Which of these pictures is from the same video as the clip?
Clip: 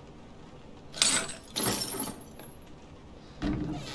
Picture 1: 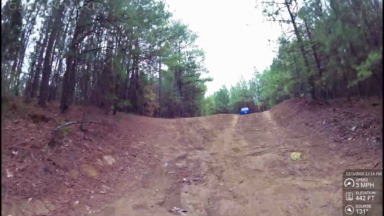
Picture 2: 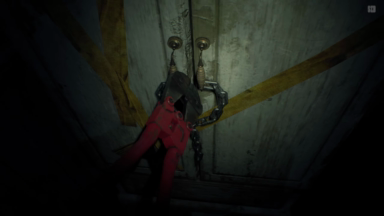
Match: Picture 2